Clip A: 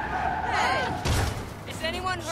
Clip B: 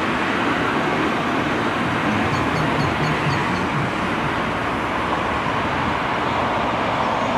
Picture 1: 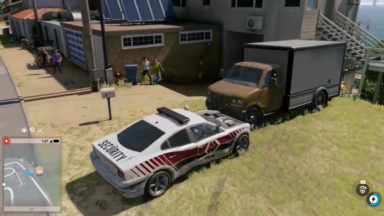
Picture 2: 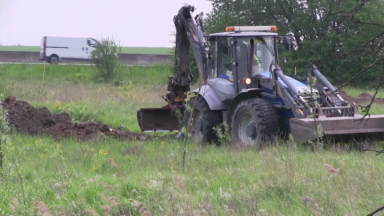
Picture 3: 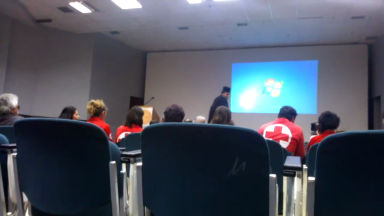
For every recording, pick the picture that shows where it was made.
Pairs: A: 1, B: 2